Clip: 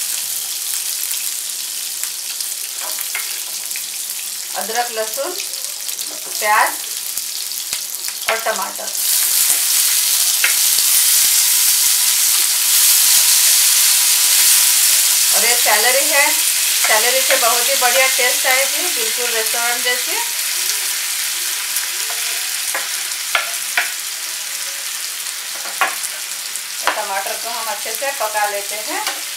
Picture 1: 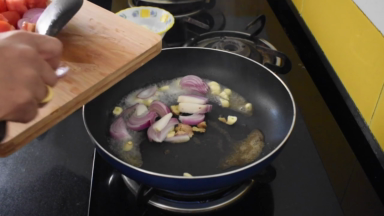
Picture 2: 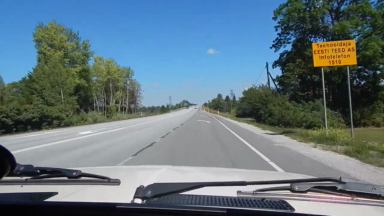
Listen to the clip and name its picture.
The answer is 1